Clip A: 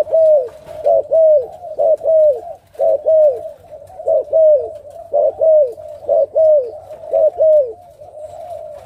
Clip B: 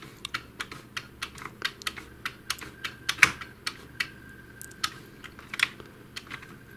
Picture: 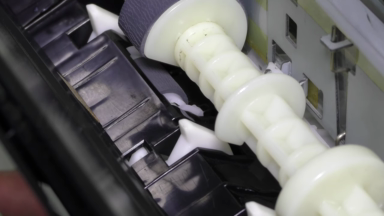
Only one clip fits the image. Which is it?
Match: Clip B